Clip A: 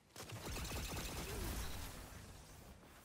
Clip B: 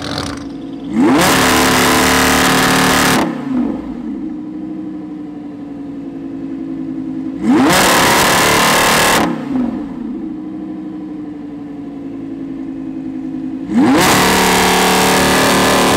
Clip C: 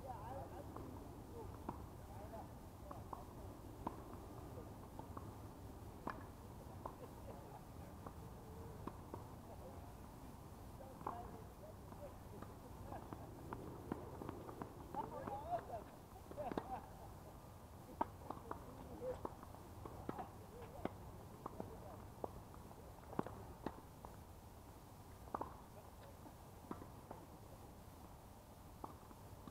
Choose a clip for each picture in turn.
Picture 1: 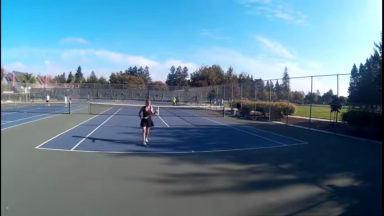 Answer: C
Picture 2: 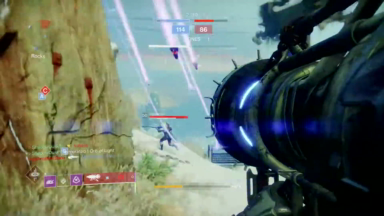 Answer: A